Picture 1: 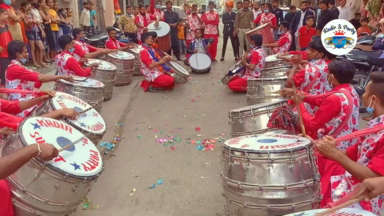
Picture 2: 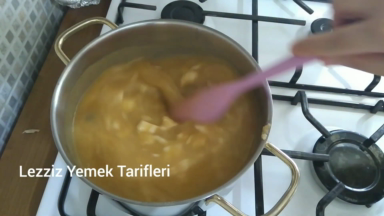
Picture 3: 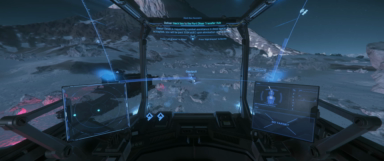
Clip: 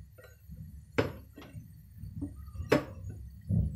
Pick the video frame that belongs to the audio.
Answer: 2